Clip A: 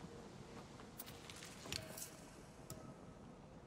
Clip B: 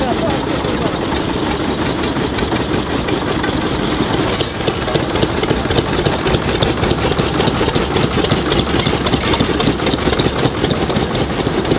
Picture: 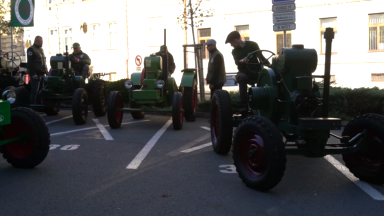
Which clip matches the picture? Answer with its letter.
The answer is B